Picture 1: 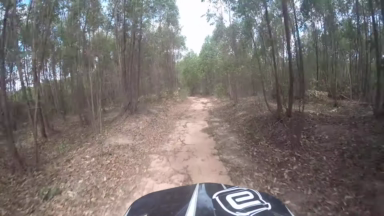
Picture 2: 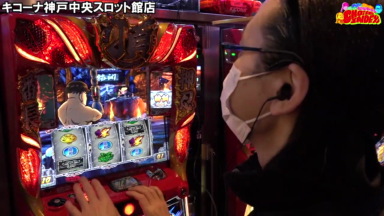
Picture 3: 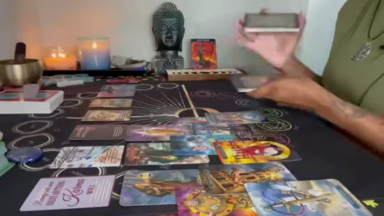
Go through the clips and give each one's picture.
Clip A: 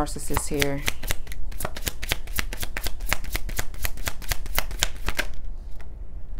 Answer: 3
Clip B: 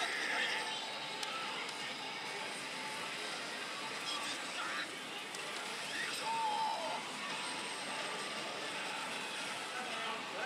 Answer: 2